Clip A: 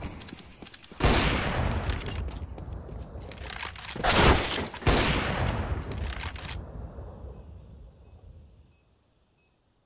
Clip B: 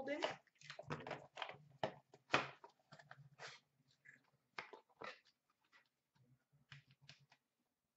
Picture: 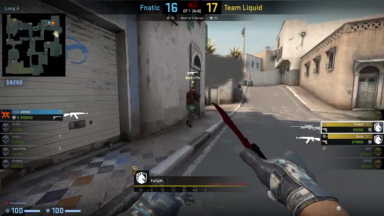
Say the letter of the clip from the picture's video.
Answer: A